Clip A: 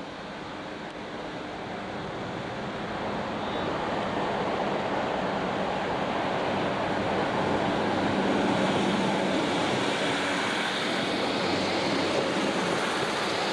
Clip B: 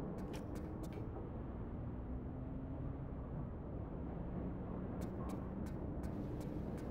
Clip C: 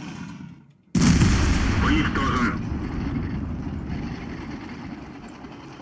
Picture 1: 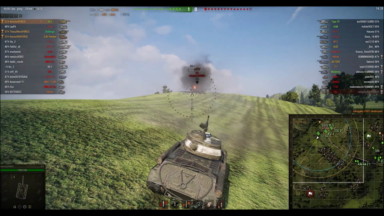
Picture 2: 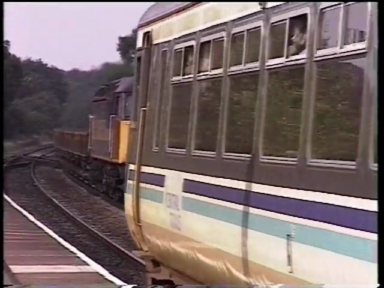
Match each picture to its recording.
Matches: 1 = C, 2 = A